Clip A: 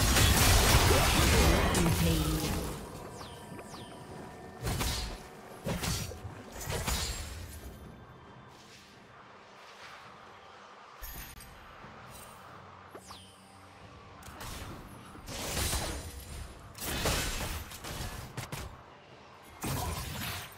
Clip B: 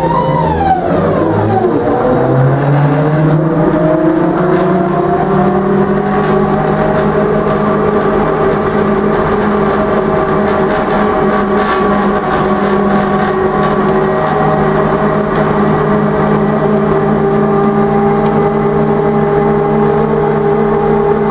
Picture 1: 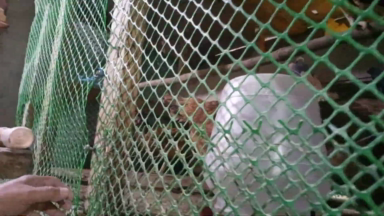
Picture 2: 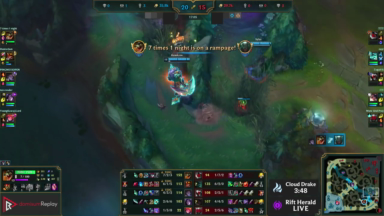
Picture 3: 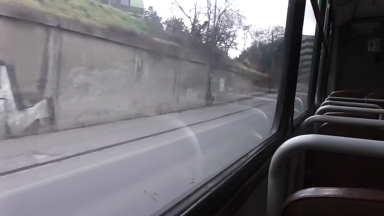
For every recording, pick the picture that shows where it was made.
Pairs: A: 2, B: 3